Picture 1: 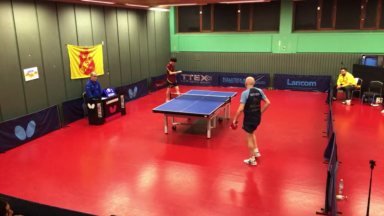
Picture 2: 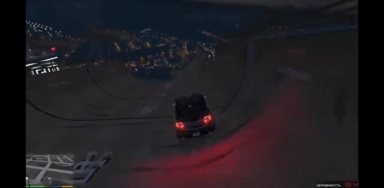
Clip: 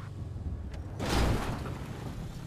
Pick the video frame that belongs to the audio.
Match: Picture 2